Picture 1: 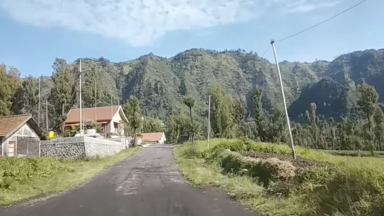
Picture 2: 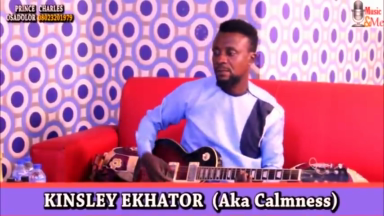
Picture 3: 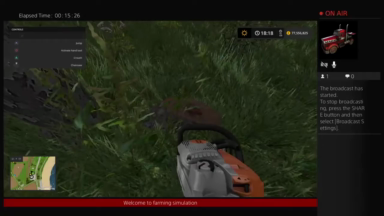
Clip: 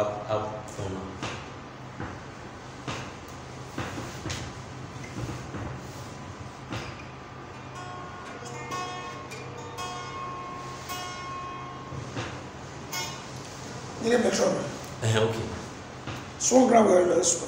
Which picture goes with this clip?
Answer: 2